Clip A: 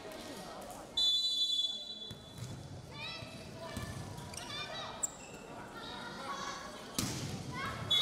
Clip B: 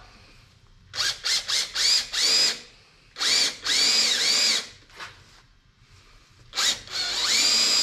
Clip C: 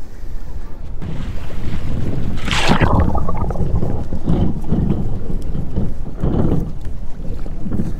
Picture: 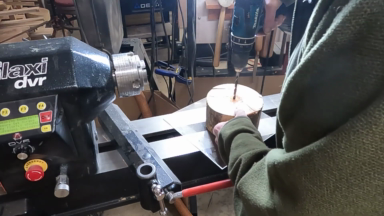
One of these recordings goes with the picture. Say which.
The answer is B